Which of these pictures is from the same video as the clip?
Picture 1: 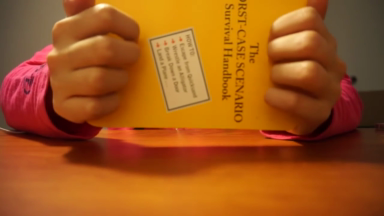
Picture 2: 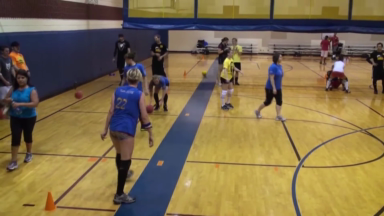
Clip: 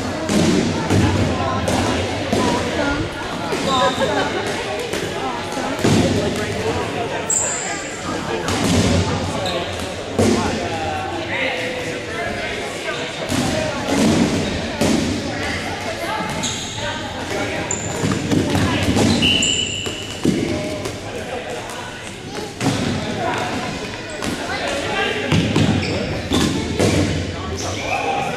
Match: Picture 2